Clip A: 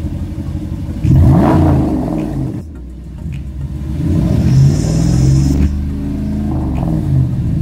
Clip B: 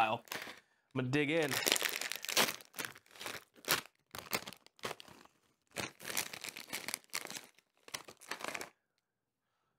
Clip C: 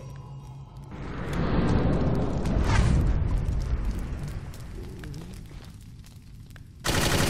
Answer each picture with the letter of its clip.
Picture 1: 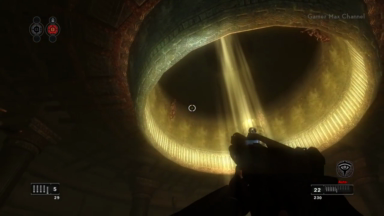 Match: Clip C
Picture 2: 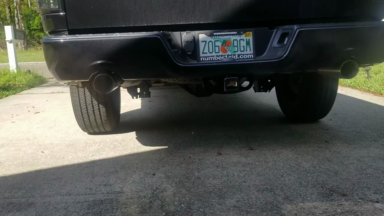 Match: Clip A